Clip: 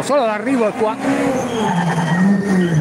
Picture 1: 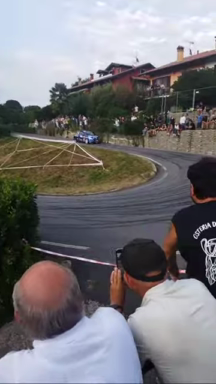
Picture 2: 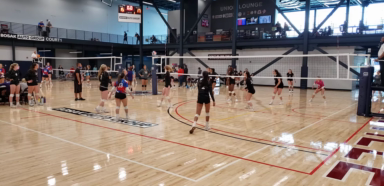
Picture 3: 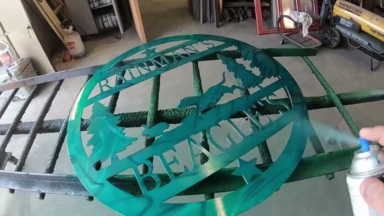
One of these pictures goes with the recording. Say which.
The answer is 1